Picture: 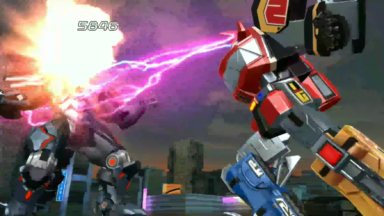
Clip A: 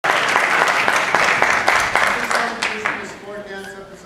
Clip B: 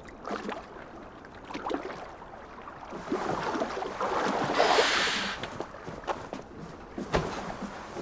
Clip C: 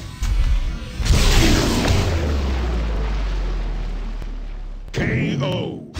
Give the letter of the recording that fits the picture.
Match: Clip C